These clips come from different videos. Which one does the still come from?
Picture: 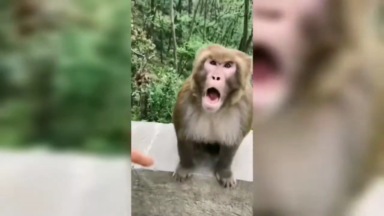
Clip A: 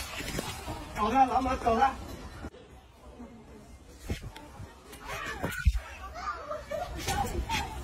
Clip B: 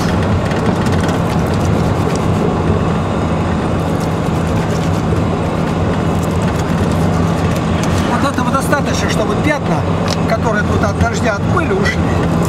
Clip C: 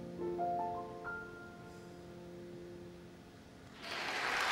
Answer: A